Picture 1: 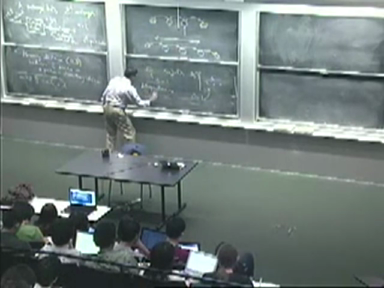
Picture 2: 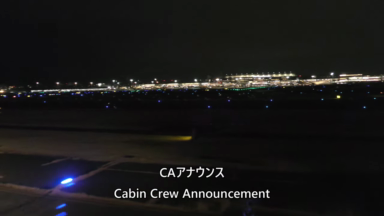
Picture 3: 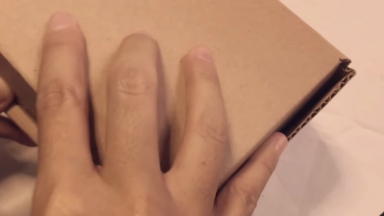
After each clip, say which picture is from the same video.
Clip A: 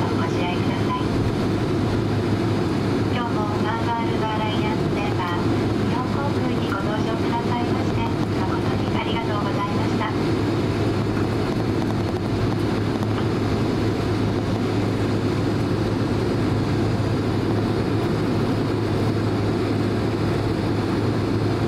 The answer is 2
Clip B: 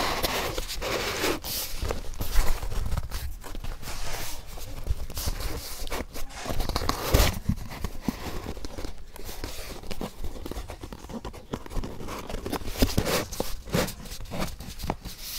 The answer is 3